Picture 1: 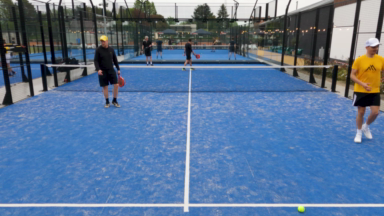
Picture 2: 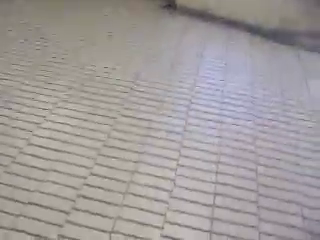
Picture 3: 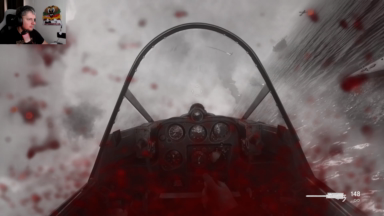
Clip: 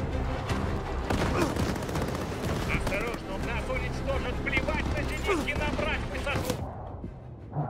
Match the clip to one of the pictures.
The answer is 3